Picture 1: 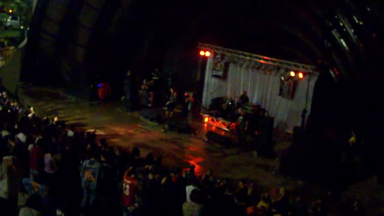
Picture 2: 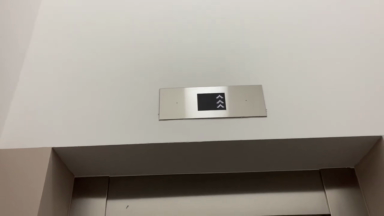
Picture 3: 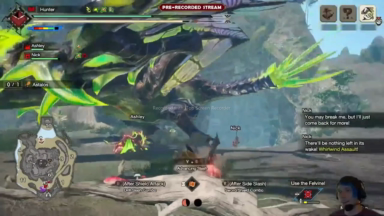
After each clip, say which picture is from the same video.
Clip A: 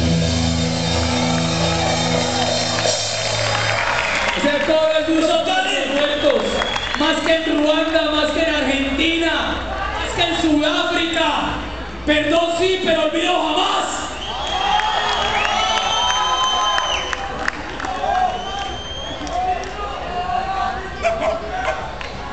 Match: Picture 1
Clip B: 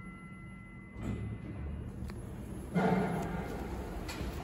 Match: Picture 2